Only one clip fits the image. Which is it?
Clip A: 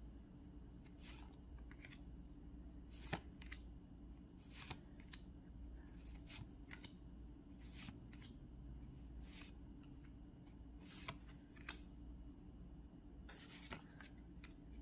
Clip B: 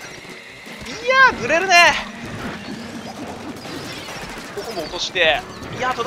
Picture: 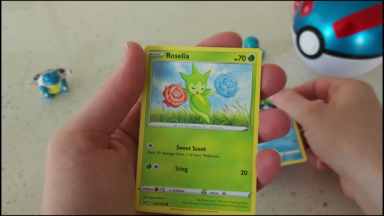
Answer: A